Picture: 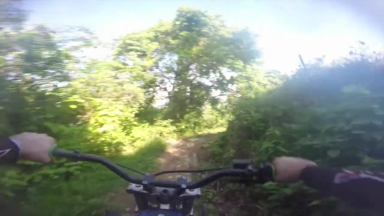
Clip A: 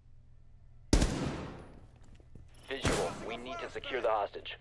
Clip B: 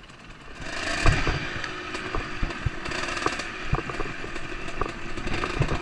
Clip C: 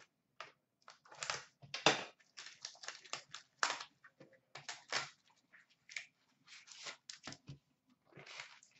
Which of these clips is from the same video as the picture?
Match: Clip B